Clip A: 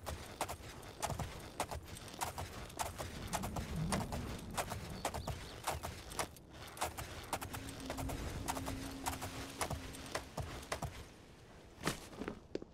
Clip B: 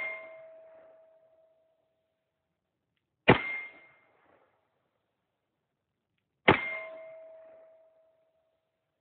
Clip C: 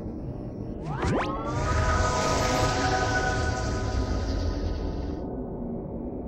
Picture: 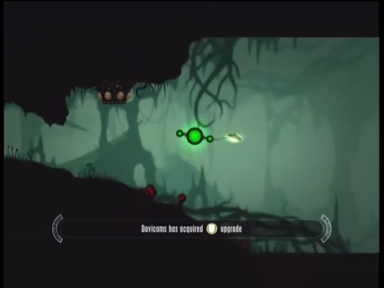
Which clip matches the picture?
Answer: C